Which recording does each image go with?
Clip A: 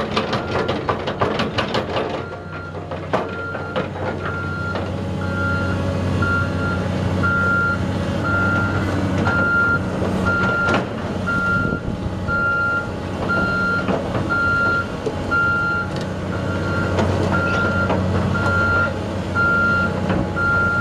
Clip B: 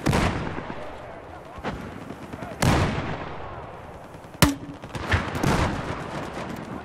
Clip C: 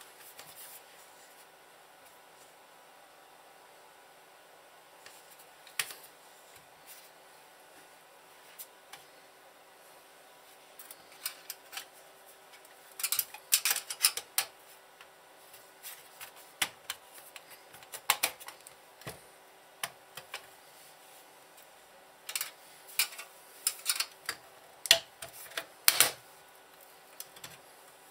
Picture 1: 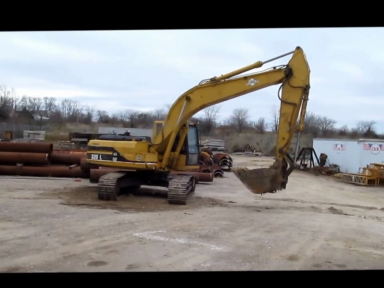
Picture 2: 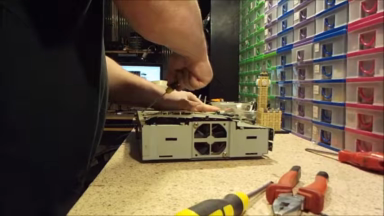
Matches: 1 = A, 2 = C